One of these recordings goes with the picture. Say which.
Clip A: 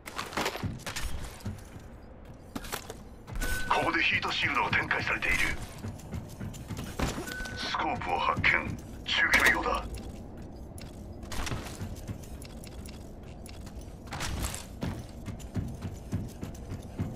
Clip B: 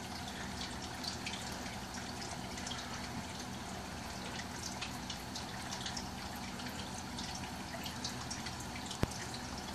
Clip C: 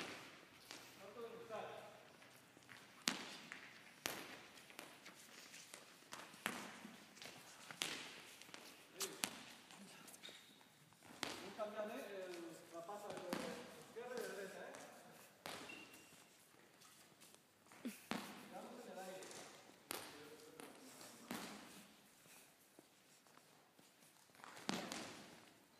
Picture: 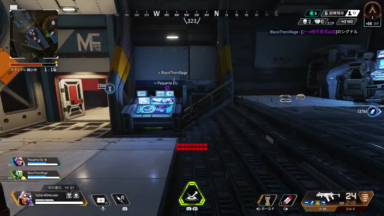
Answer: A